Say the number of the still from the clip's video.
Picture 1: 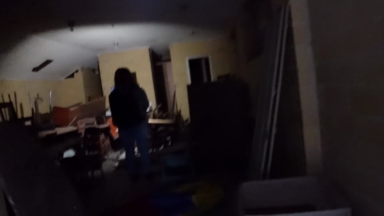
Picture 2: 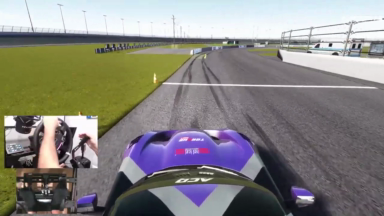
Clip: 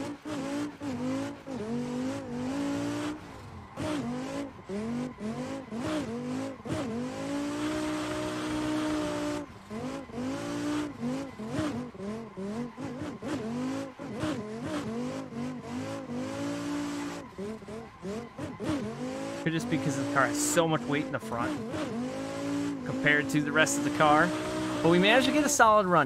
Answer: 2